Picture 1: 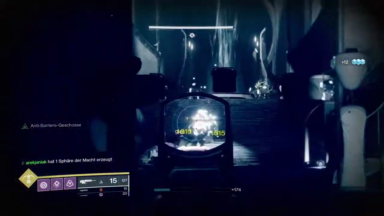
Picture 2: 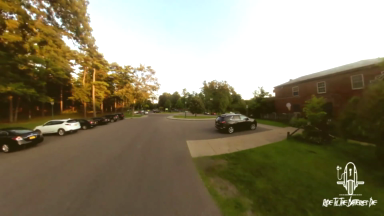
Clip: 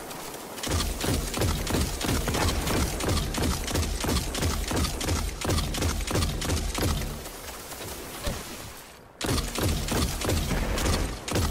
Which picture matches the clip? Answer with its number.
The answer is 1